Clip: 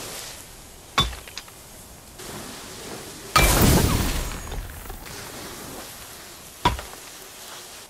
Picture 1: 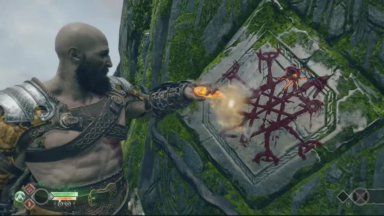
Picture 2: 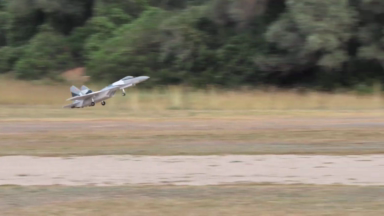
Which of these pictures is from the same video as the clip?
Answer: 1